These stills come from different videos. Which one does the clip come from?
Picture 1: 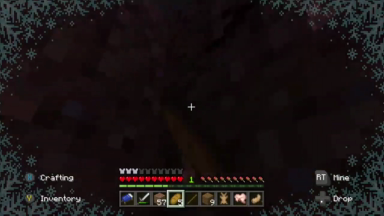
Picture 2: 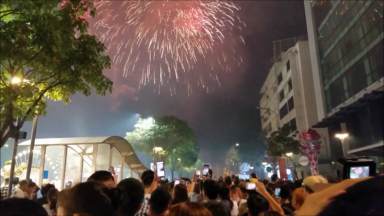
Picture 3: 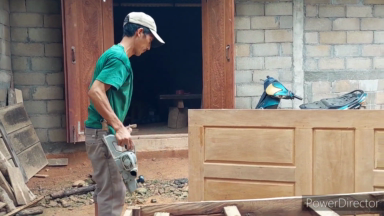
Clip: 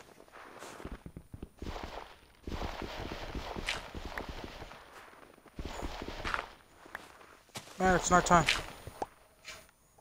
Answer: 1